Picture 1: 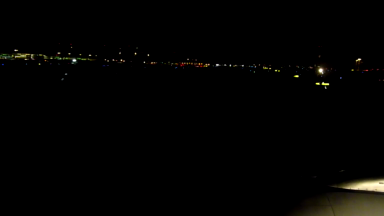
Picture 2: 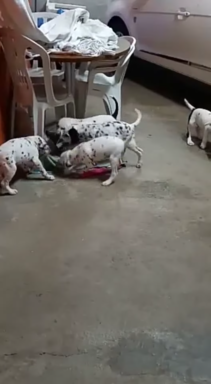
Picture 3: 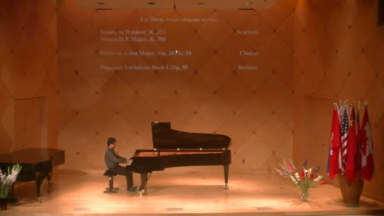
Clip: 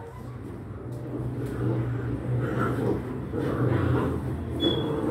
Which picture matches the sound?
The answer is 2